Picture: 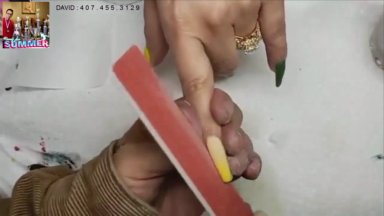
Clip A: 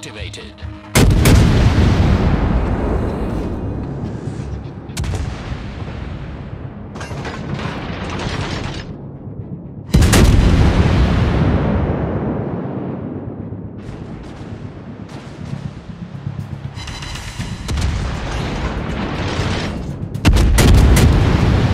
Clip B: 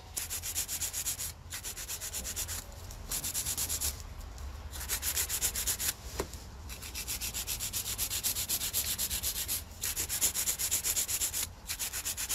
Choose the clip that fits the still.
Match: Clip B